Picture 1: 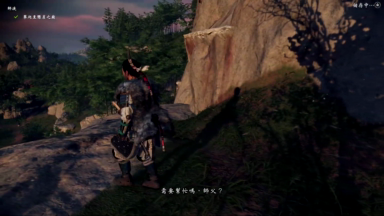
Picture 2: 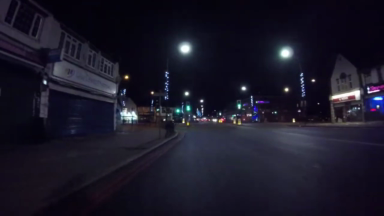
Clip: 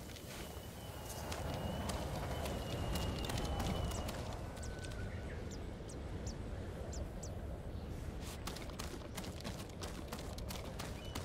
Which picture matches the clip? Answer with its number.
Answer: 1